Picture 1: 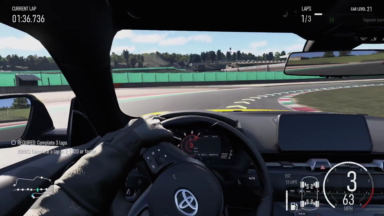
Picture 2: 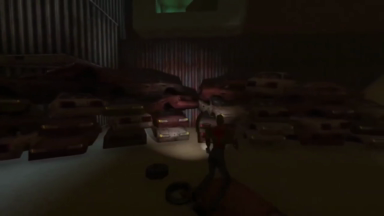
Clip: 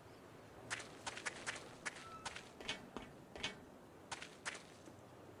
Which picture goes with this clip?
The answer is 2